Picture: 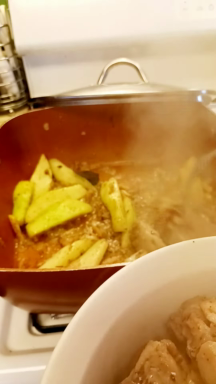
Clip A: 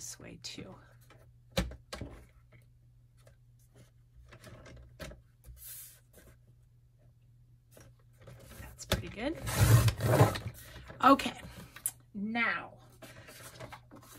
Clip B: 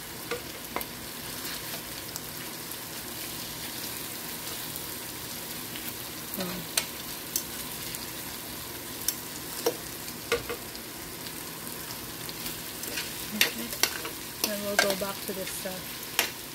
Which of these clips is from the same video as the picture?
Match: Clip B